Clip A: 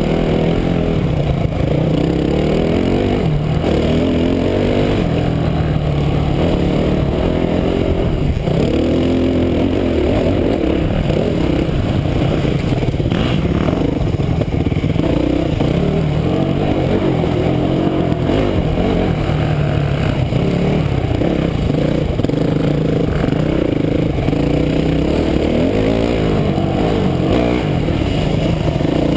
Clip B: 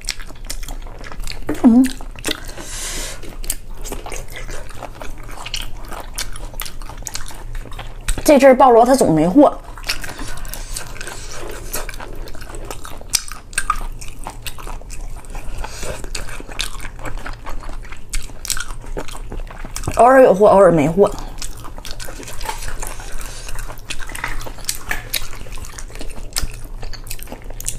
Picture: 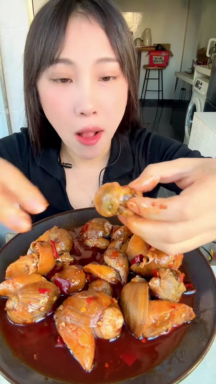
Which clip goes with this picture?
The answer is B